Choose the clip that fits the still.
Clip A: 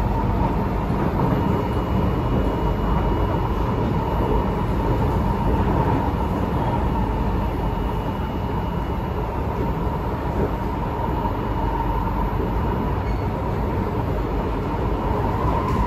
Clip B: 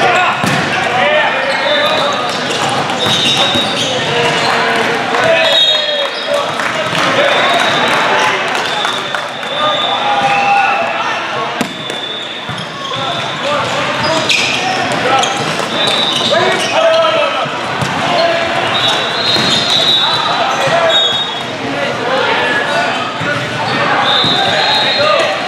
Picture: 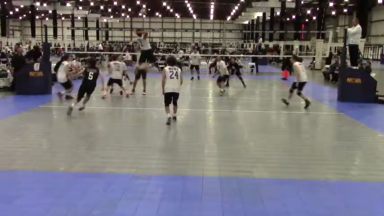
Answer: B